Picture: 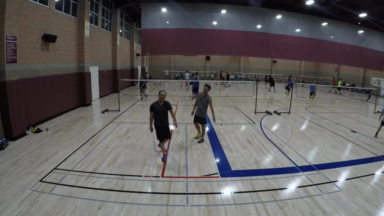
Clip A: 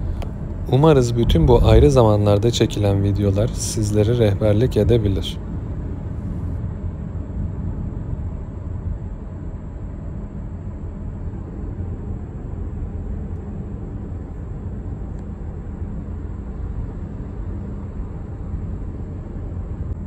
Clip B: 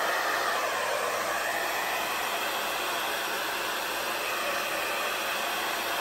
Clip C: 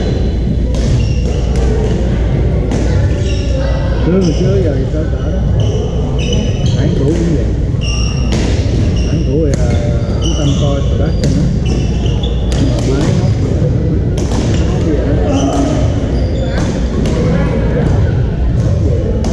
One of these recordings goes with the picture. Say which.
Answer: C